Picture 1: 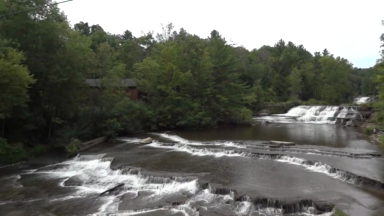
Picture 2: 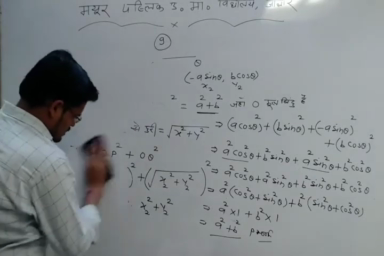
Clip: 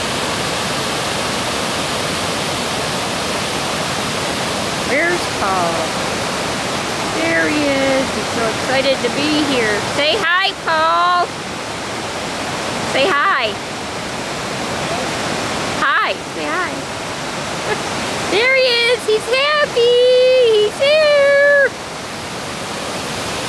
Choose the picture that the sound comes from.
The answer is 1